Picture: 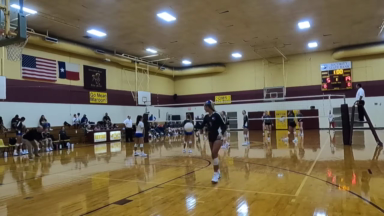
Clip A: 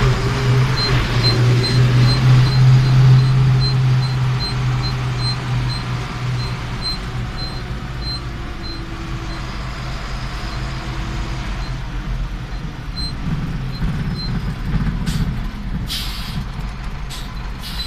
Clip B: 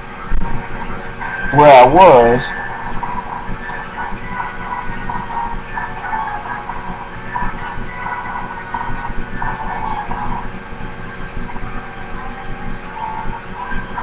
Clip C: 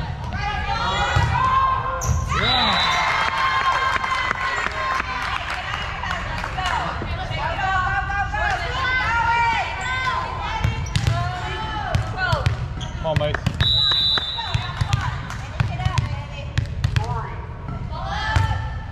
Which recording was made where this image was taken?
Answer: C